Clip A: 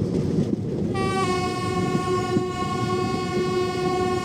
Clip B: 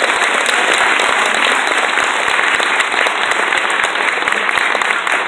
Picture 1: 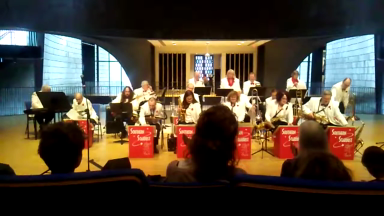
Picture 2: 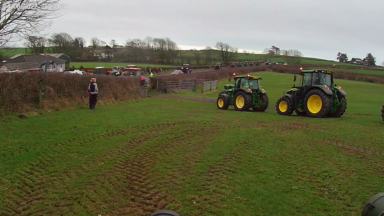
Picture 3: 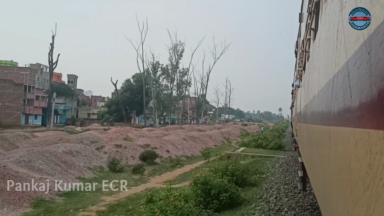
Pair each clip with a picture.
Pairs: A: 3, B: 1